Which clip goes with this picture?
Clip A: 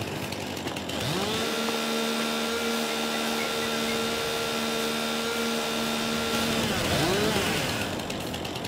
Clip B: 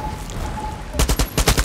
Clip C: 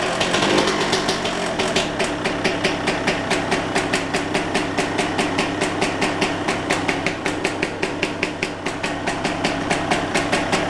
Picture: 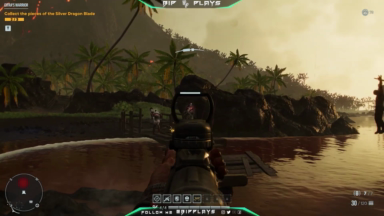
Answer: B